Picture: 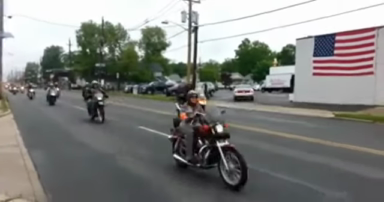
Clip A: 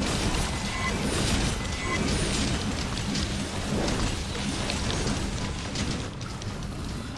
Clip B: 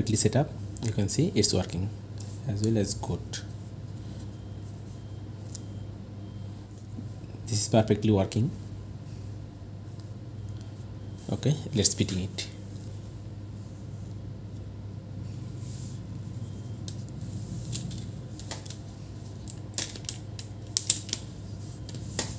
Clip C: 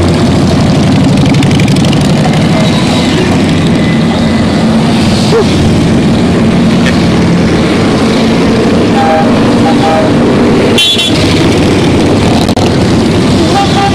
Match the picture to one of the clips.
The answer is C